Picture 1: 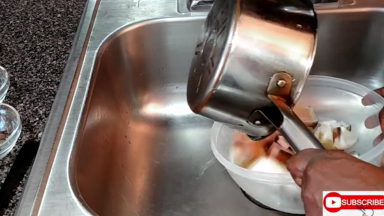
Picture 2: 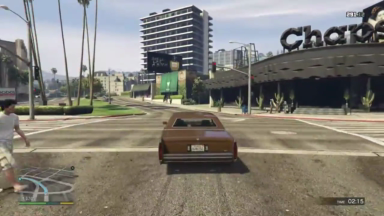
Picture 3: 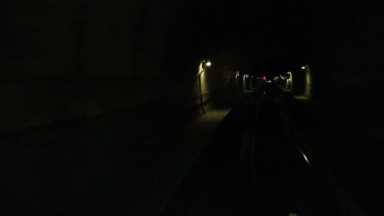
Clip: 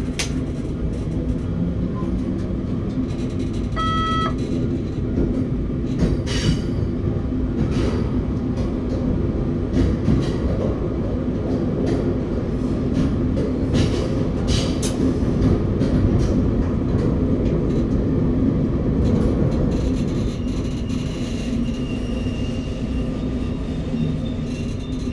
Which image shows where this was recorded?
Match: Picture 3